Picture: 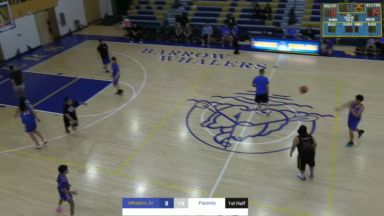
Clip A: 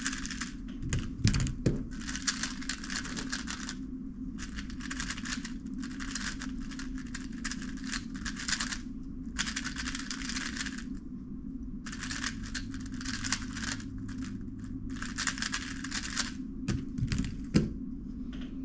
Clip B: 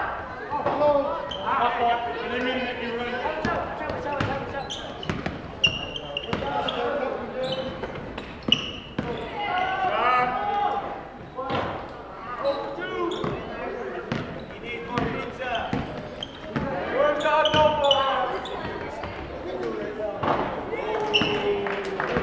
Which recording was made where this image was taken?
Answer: B